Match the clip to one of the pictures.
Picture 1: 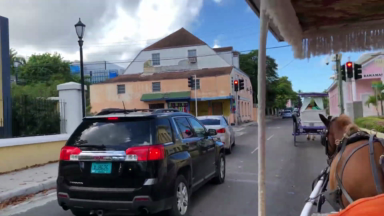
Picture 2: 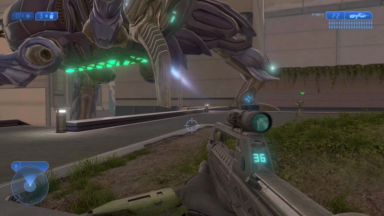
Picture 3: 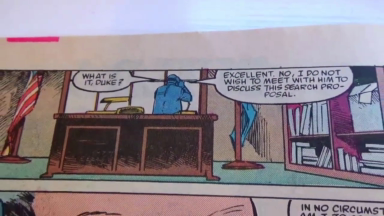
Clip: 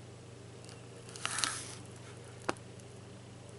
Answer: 3